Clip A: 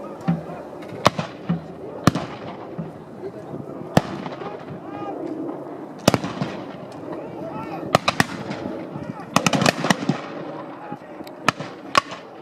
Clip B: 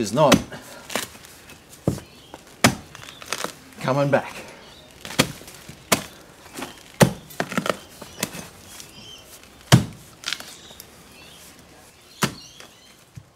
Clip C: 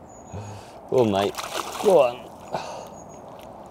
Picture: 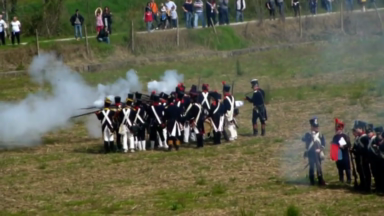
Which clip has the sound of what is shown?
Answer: A